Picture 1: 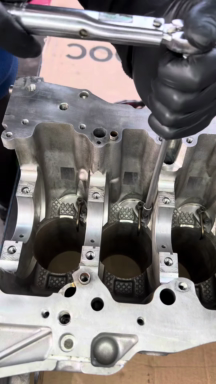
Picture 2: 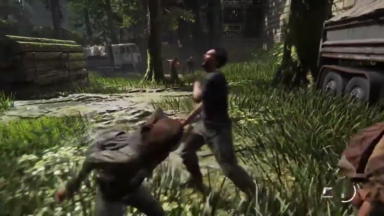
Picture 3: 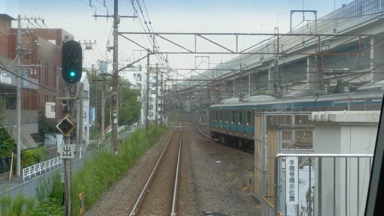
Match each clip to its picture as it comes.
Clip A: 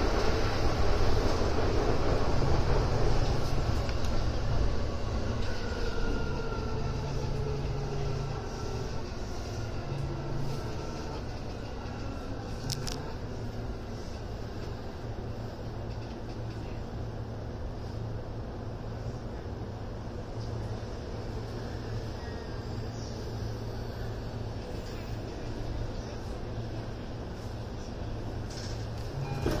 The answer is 3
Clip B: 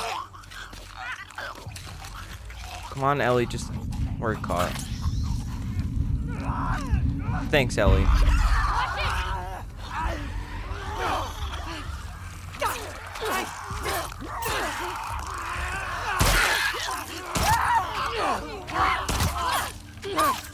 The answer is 2